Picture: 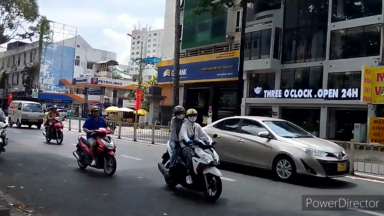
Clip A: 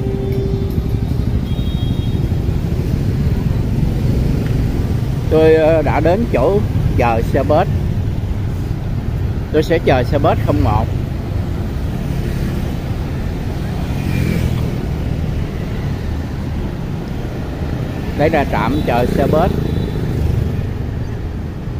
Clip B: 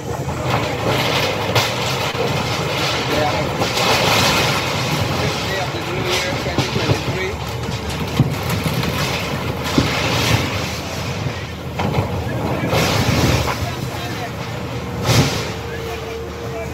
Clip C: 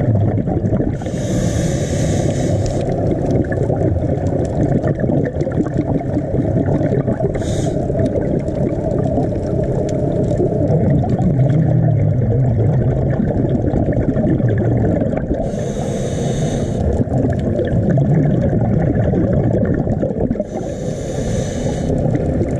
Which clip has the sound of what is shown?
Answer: A